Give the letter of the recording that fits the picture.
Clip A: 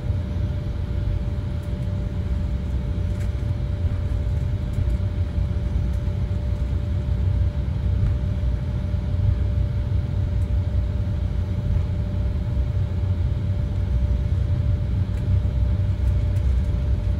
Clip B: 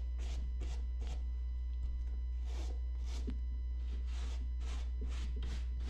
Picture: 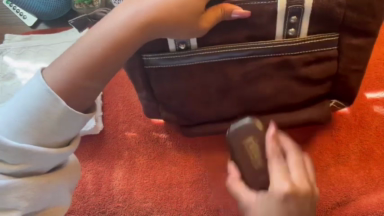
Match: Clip B